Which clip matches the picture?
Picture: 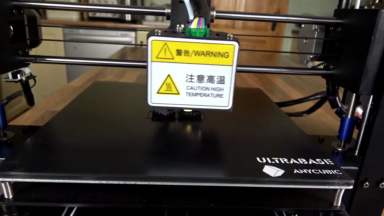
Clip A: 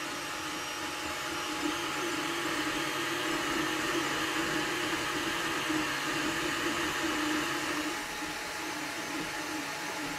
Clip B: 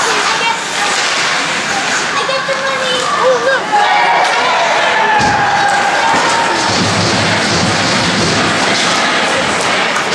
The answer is A